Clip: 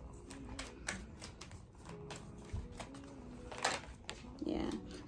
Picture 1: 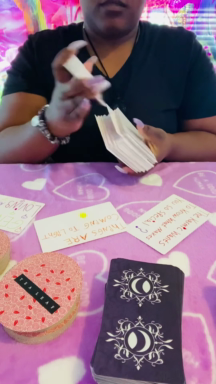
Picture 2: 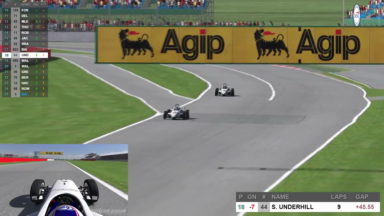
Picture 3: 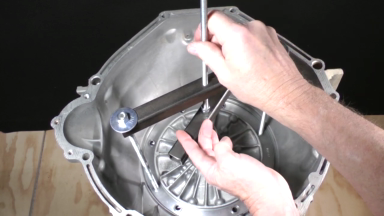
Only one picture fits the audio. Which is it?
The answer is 1